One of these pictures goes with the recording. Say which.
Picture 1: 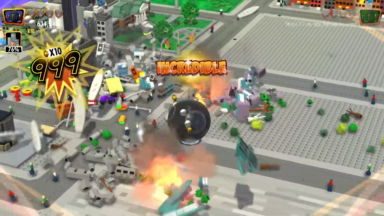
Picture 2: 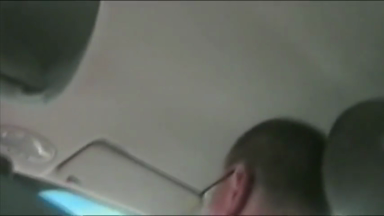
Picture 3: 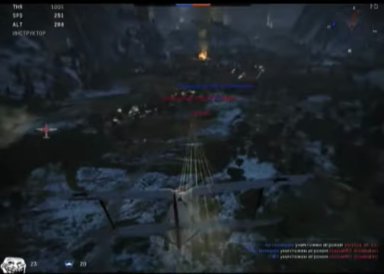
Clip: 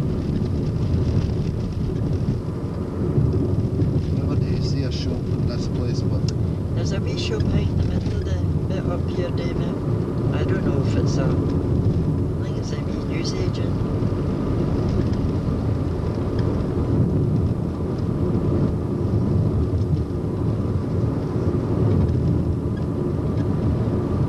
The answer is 2